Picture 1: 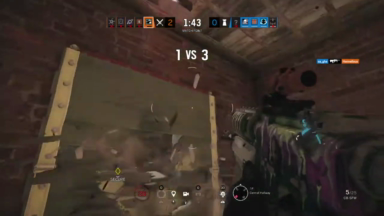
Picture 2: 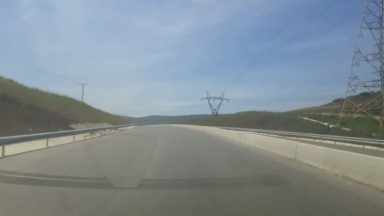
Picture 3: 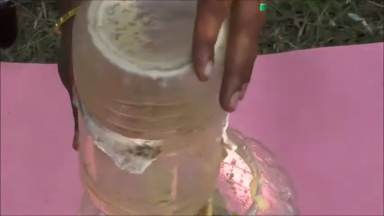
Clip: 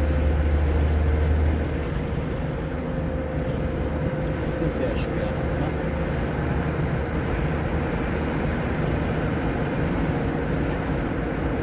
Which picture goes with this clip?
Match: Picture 2